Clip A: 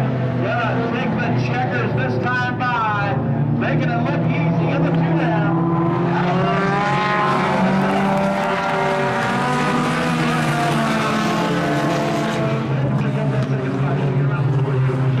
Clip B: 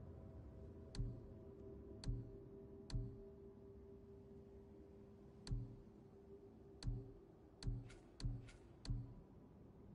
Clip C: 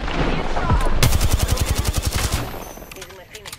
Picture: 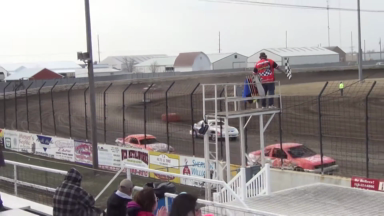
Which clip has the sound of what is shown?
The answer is A